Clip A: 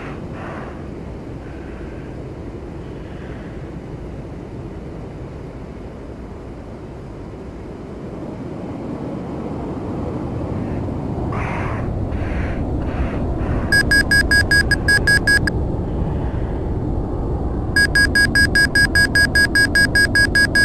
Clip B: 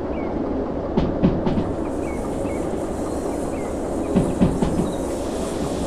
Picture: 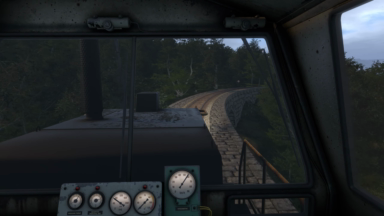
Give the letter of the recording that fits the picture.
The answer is B